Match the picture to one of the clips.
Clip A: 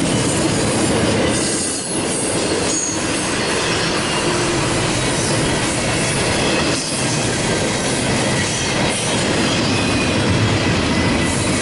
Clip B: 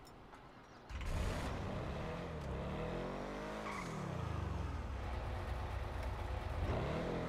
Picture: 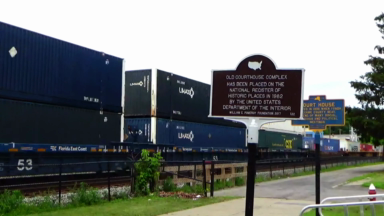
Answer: A